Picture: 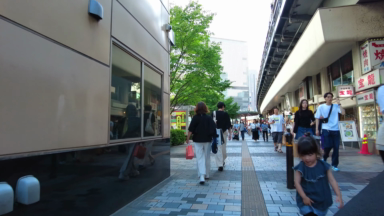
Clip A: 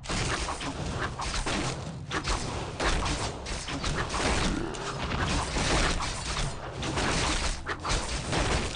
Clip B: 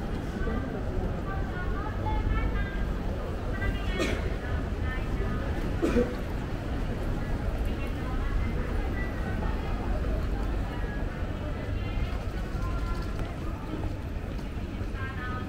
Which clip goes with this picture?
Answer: B